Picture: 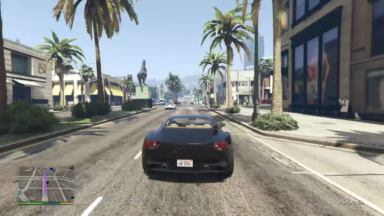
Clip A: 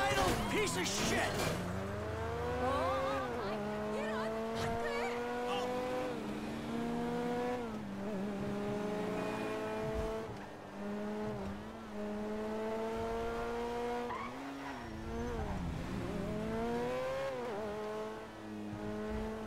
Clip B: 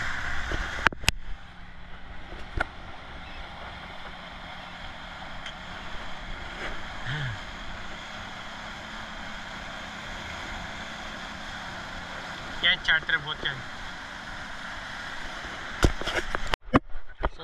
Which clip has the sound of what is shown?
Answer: A